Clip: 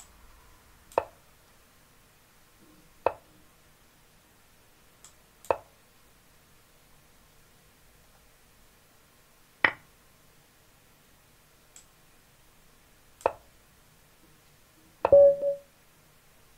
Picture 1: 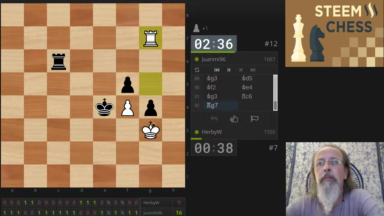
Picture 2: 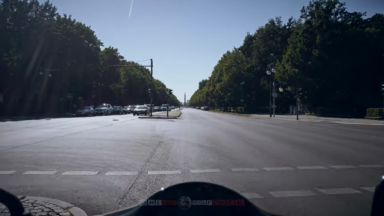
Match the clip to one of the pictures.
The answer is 1